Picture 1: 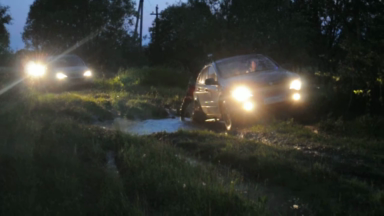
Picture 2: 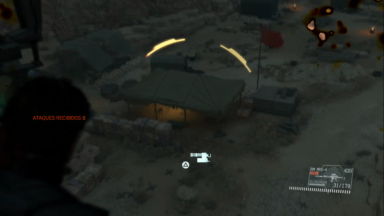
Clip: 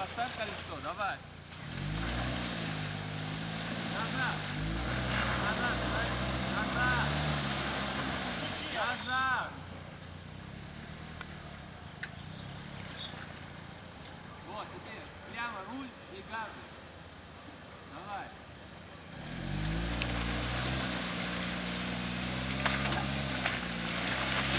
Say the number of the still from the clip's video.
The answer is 1